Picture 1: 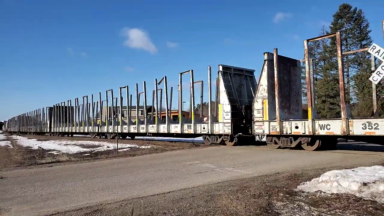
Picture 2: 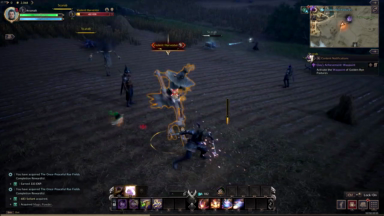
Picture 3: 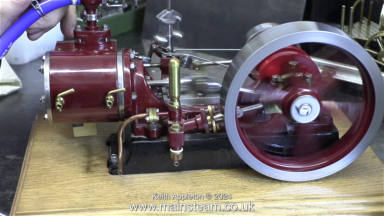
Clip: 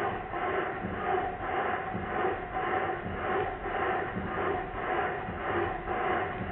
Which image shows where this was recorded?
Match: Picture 3